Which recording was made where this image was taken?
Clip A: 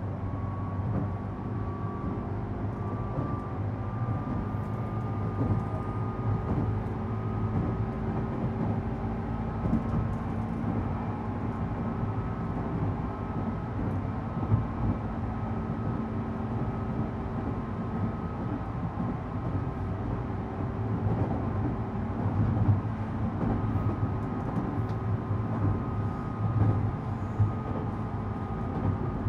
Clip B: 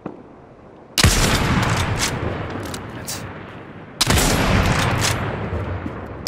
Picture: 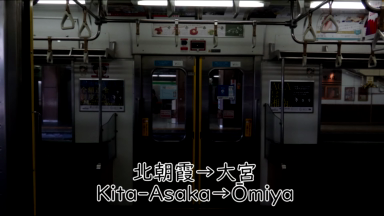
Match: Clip A